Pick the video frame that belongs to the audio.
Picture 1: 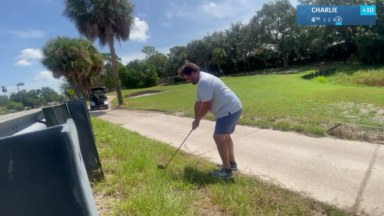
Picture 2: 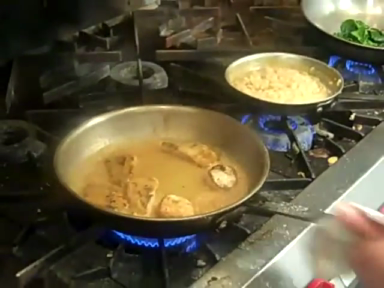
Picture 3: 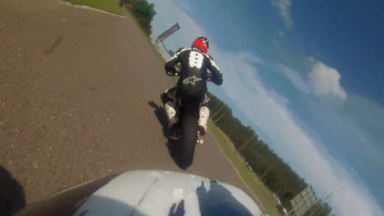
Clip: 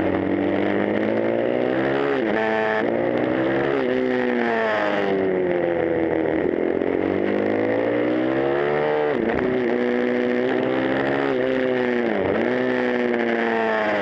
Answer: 3